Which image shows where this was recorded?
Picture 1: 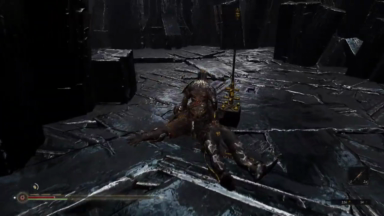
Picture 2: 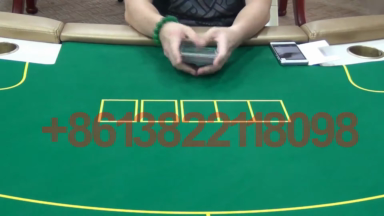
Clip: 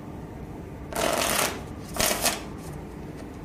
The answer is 2